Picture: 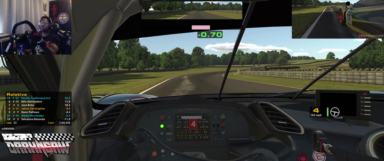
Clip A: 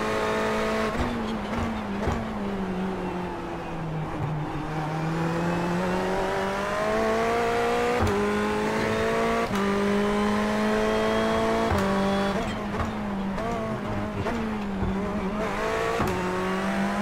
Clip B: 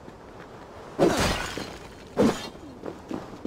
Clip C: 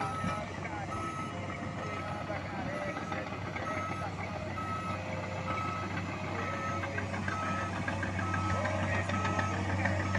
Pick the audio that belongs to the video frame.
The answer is A